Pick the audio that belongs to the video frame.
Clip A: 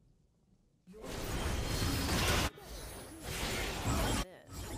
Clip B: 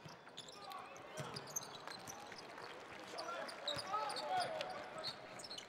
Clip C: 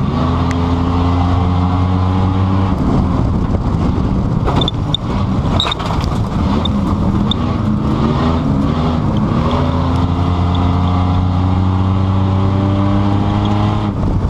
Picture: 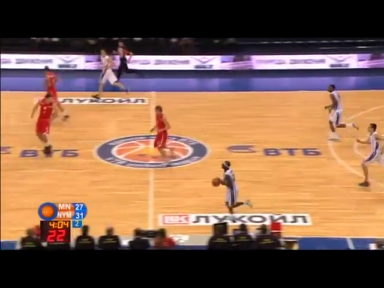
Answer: B